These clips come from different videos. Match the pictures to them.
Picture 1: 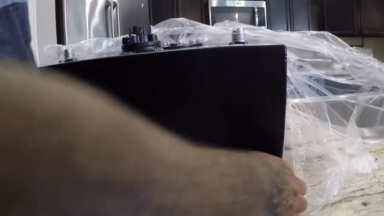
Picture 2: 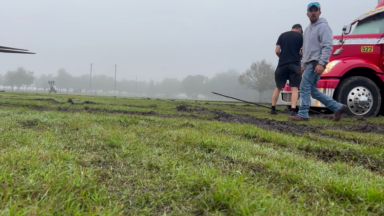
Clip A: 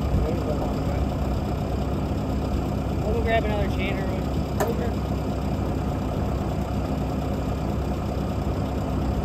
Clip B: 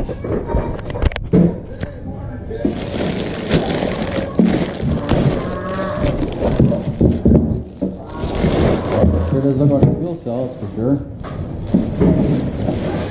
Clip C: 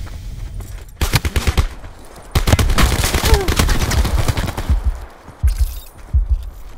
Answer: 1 B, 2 A